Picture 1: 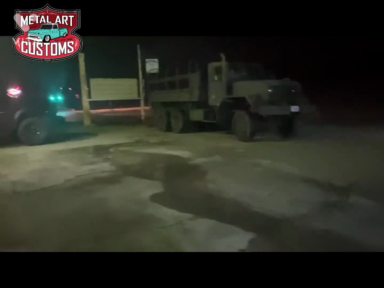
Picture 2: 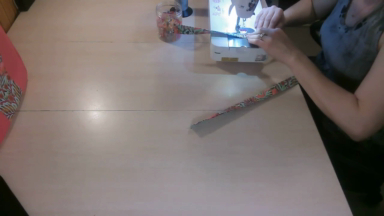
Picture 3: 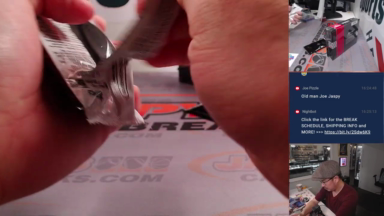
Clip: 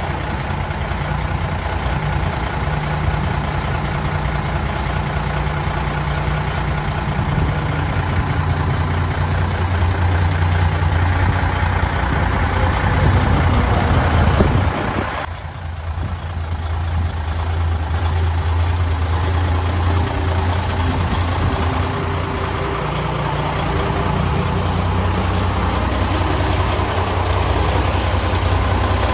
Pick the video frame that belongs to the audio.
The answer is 1